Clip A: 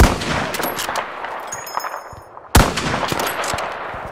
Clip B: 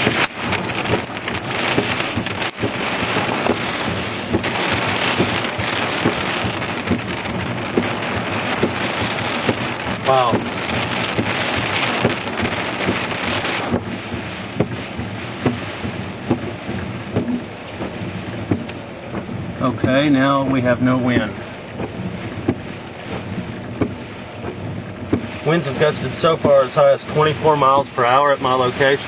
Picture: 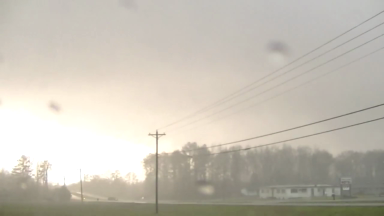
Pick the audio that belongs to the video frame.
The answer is B